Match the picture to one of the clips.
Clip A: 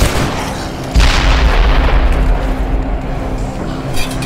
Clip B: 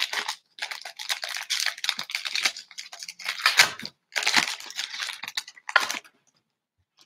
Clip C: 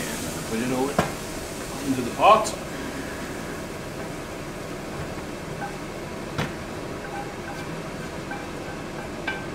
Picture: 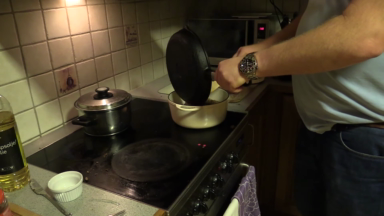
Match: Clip C